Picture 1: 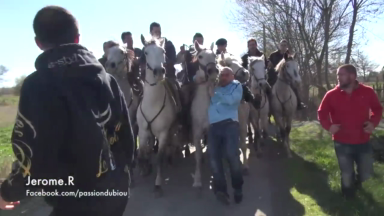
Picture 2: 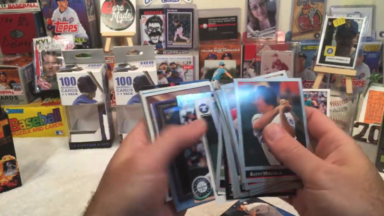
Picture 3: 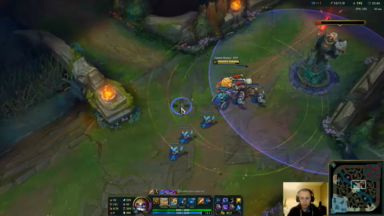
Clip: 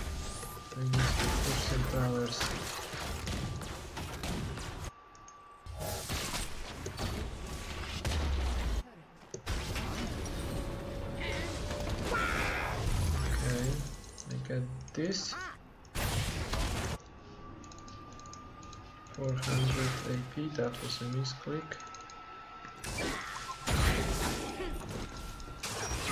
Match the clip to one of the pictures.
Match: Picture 3